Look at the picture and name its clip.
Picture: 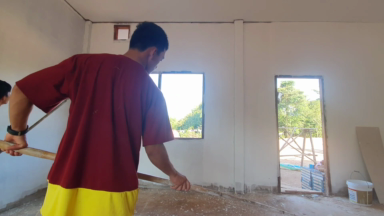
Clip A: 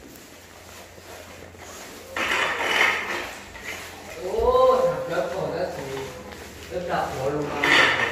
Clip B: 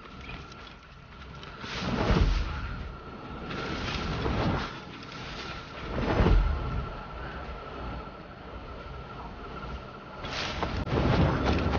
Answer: A